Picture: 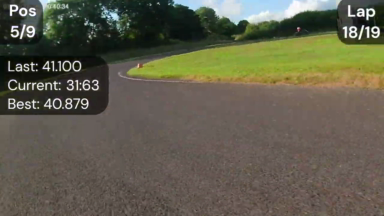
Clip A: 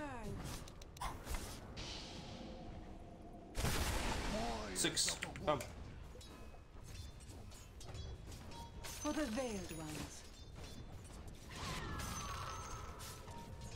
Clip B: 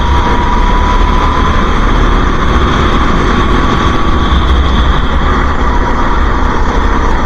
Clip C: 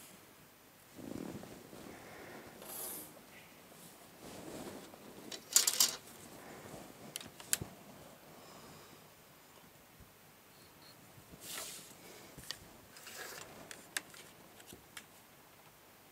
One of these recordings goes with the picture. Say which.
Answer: B